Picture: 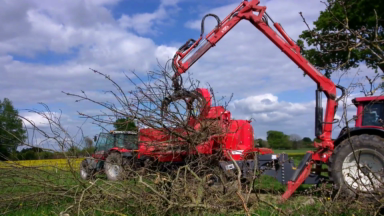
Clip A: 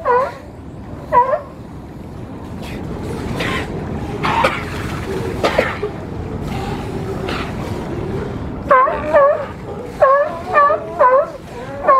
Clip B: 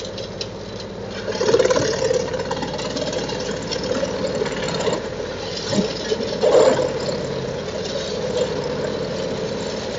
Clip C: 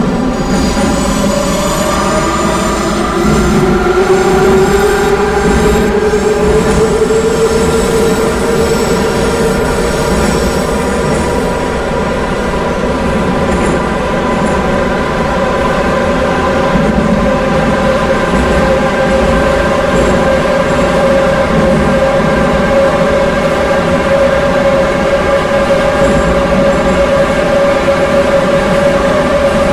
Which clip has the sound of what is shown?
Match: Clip B